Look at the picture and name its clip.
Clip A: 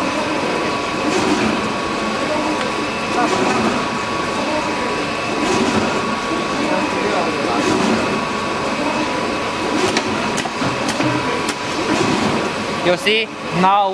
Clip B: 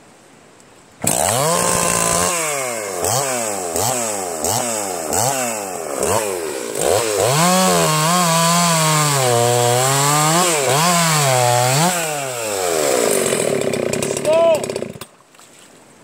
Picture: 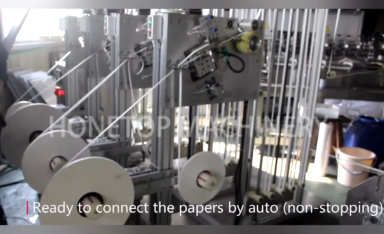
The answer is A